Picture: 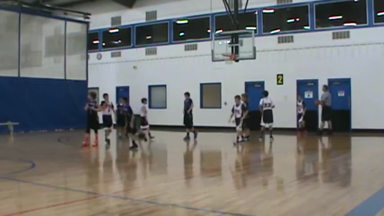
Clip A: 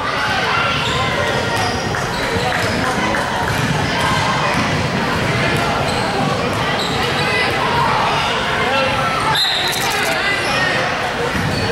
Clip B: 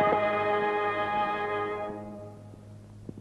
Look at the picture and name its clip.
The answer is A